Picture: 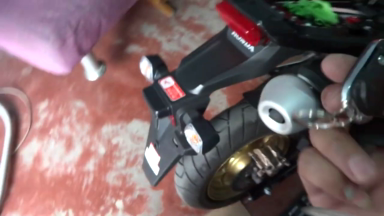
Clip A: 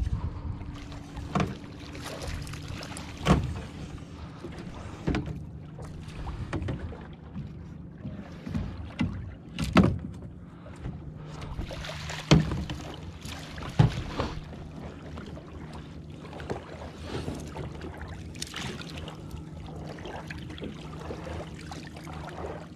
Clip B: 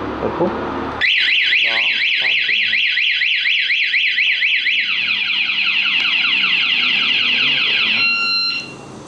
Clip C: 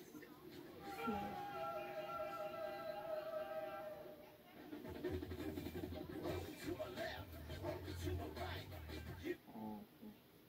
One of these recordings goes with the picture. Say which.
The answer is B